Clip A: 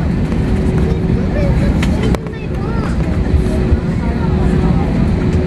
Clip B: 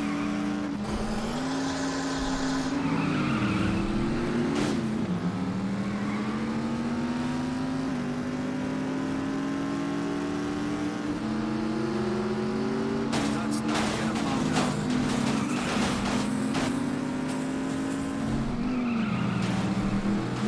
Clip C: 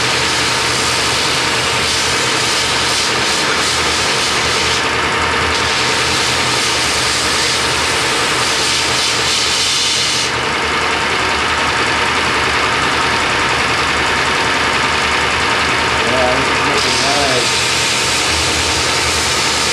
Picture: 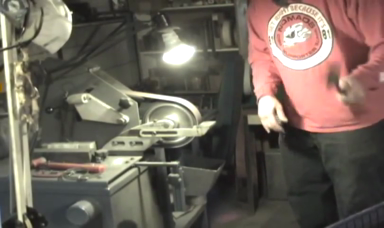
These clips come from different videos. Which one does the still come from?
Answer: C